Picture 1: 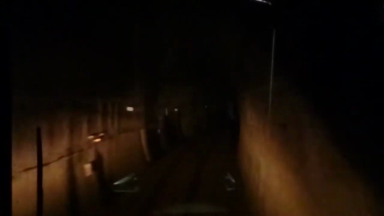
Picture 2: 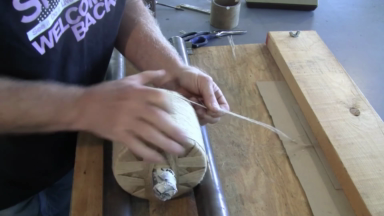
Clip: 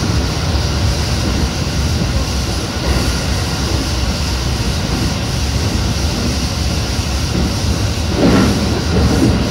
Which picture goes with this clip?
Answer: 1